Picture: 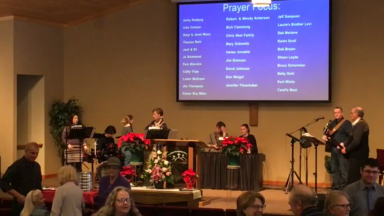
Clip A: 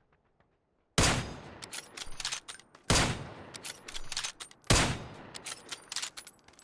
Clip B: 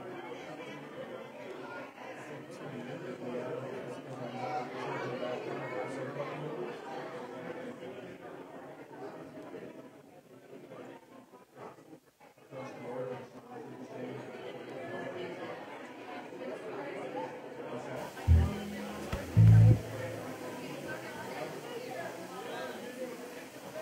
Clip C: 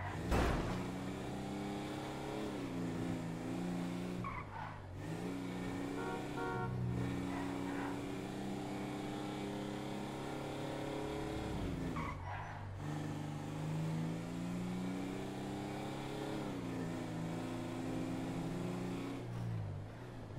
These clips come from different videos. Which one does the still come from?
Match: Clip B